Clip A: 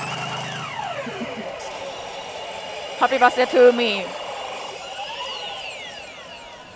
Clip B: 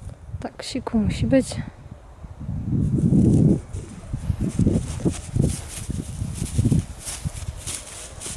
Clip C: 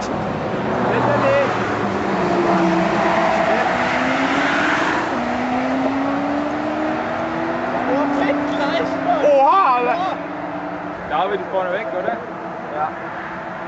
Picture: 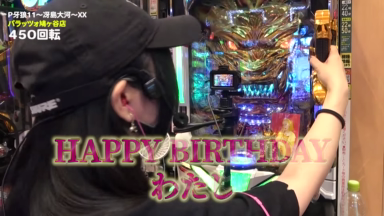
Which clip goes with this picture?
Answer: A